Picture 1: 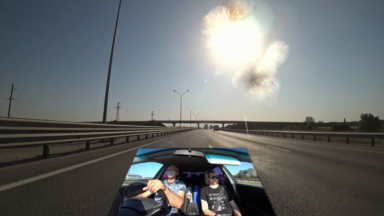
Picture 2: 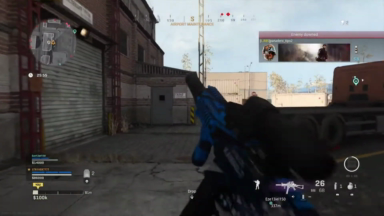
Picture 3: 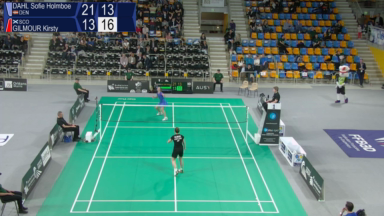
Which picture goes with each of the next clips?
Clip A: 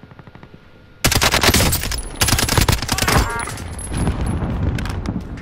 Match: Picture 2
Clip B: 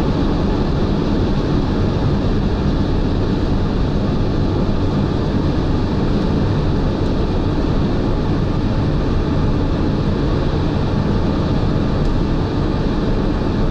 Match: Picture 1